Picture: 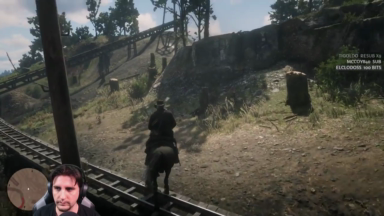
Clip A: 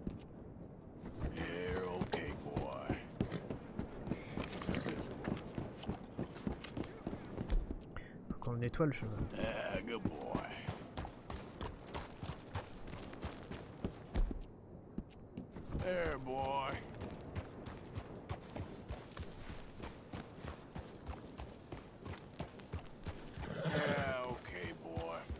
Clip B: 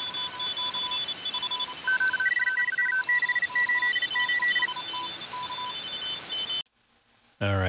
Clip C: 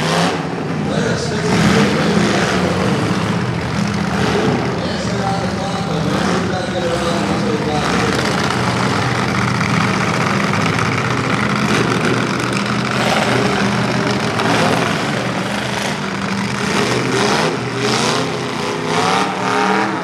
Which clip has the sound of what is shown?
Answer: A